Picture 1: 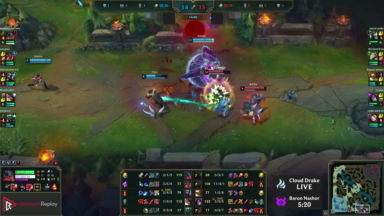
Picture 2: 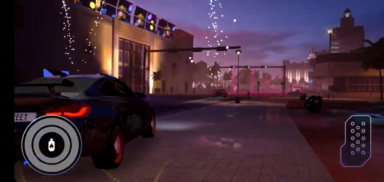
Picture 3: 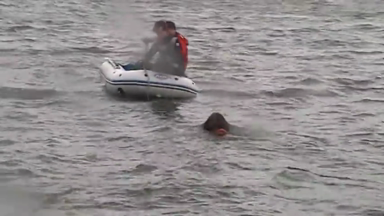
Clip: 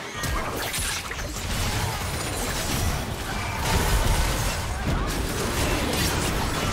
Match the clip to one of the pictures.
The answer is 1